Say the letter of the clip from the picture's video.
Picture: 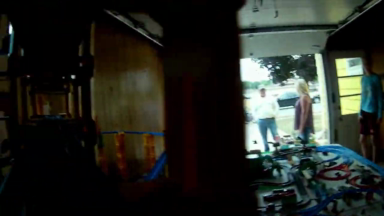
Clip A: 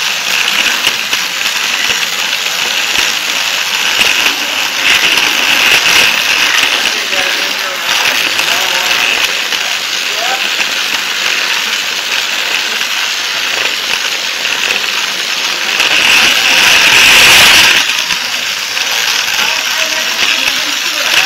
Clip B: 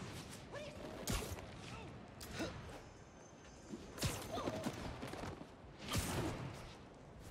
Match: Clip A